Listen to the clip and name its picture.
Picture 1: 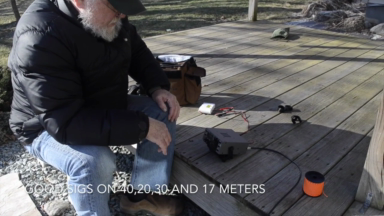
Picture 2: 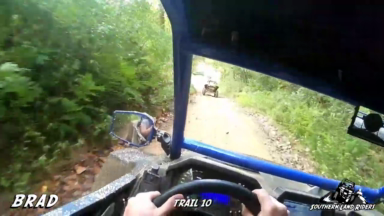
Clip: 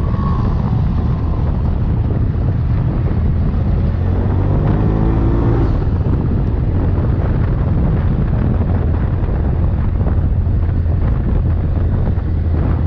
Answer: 2